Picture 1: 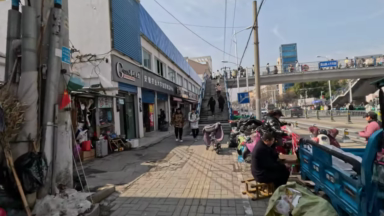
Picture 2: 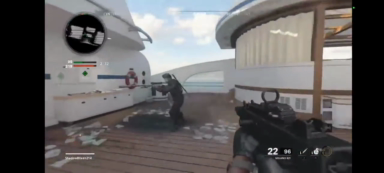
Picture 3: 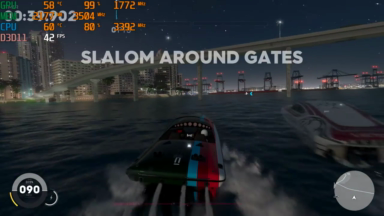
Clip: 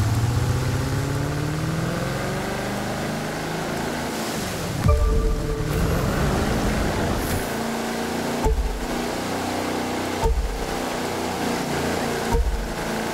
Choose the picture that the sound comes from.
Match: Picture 3